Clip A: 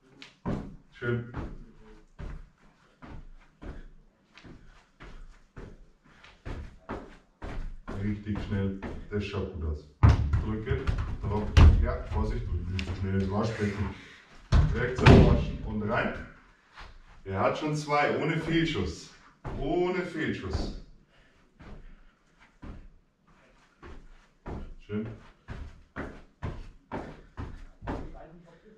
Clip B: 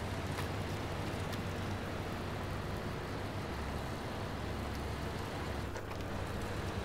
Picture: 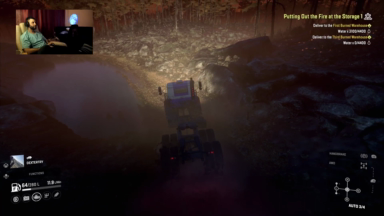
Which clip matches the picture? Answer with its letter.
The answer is B